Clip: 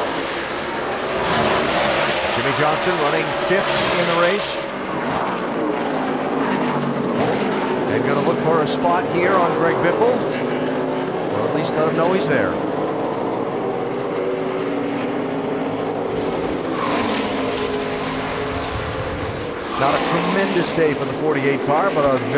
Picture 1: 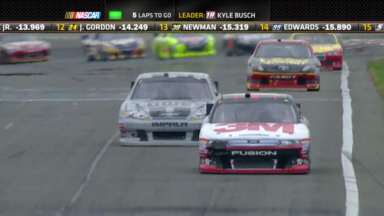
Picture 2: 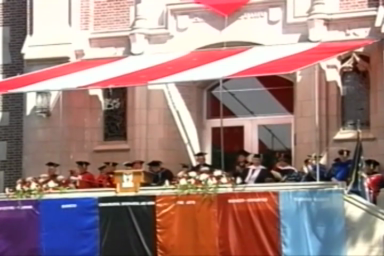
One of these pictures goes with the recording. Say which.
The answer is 1